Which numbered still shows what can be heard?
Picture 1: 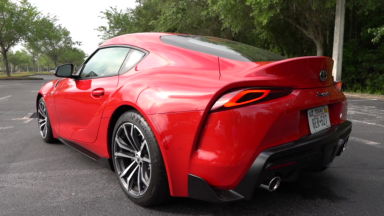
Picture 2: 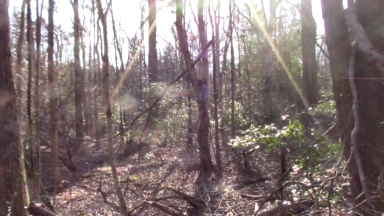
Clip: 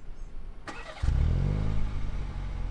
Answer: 1